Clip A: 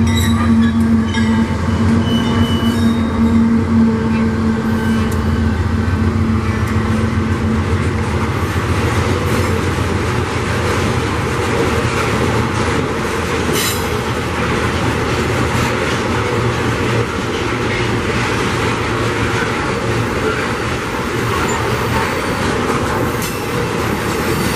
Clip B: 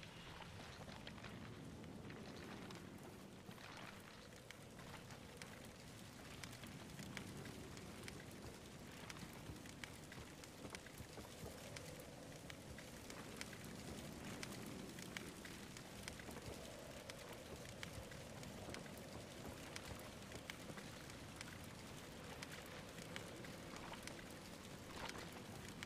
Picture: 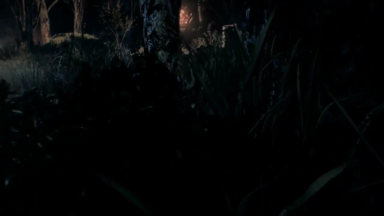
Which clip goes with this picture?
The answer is B